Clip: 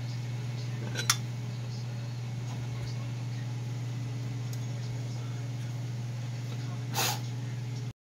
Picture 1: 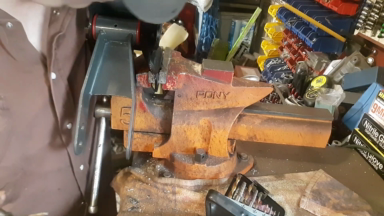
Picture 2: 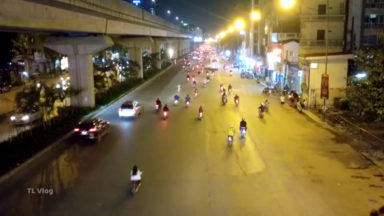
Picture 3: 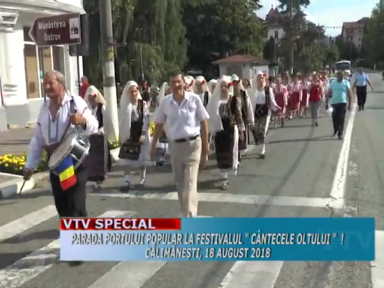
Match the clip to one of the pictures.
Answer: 1